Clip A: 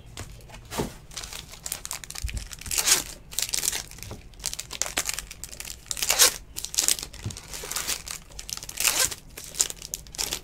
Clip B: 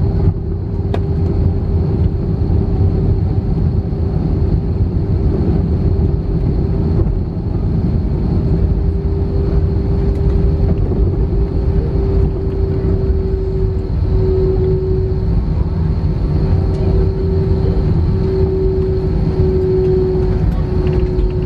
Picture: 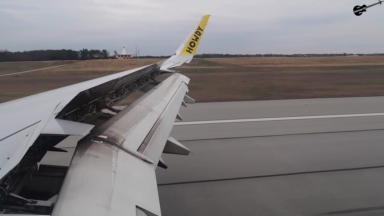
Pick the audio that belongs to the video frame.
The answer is B